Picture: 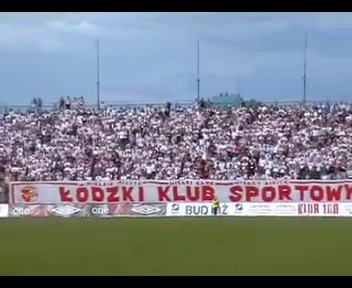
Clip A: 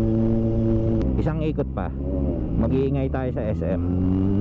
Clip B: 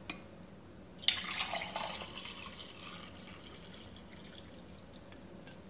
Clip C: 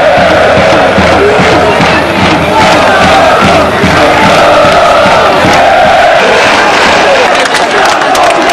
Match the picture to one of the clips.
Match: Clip C